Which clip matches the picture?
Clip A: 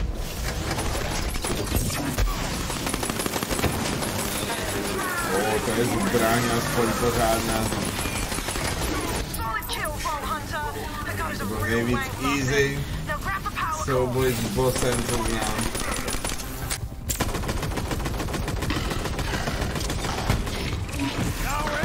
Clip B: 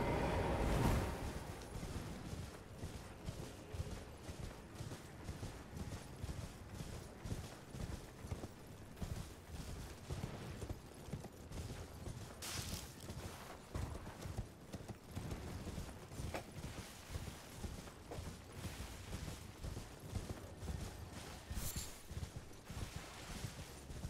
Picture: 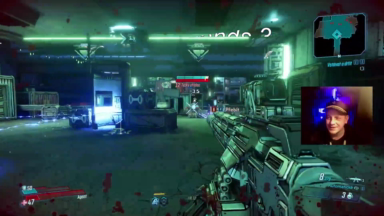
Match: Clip A